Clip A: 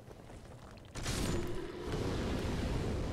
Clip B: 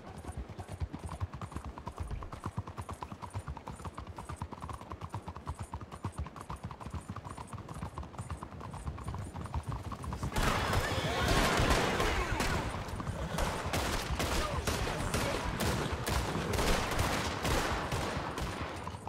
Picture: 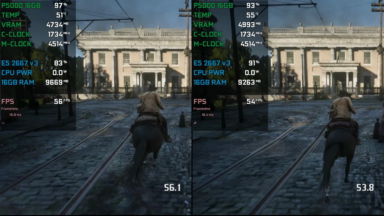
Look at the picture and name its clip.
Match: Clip B